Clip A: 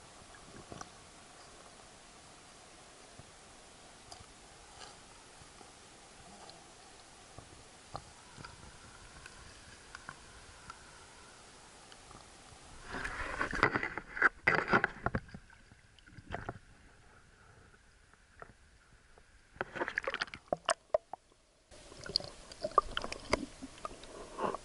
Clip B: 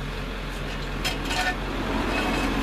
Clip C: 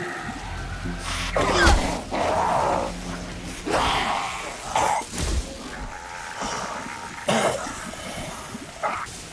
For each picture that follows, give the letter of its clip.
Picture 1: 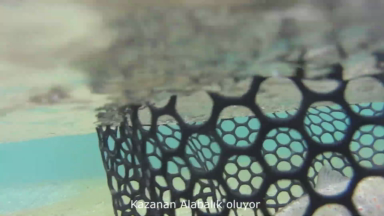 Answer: A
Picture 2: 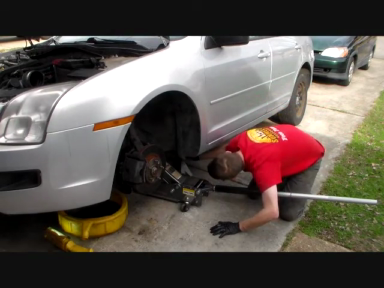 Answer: B